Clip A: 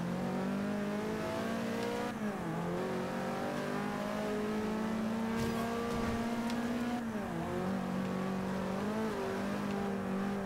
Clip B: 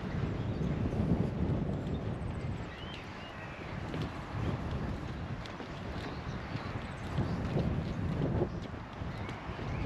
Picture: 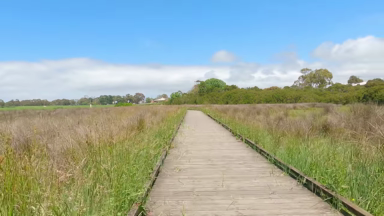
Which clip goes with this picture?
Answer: B